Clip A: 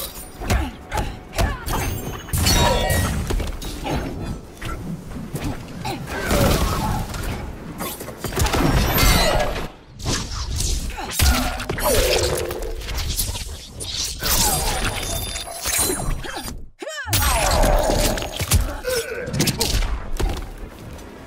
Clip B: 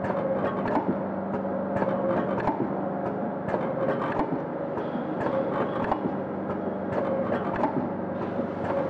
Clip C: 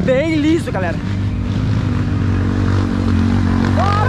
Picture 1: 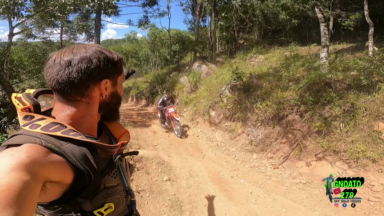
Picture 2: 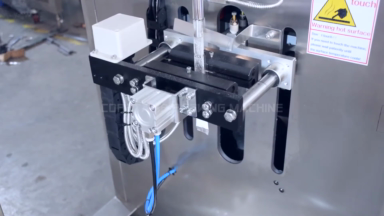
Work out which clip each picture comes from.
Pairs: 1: C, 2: B